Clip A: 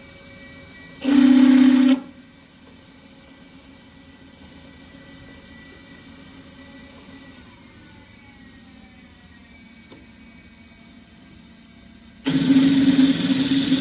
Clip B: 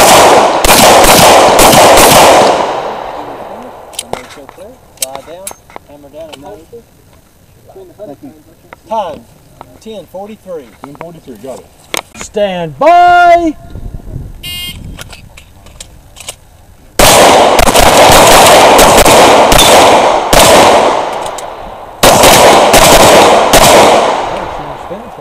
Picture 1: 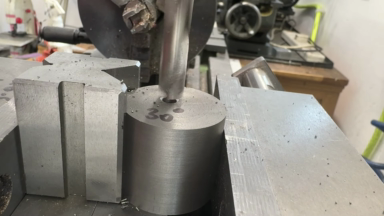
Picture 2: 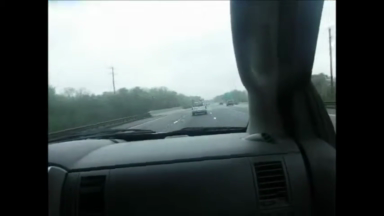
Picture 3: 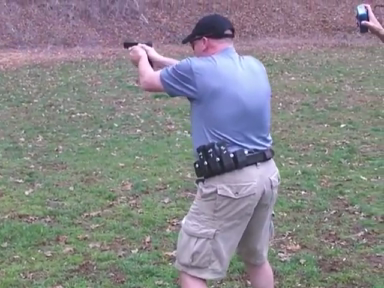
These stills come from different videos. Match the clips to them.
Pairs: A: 1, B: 3